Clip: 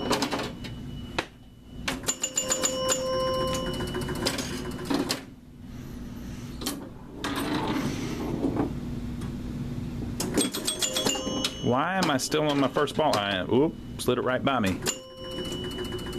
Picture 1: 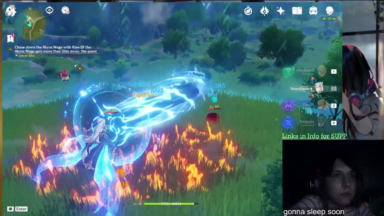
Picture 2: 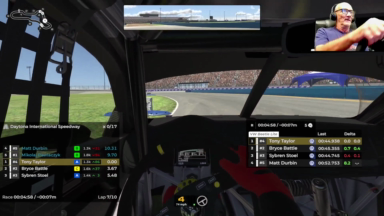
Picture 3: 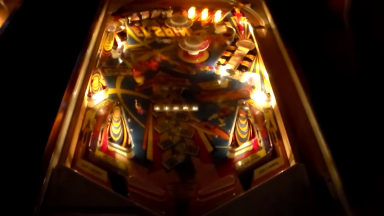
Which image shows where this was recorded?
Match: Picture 3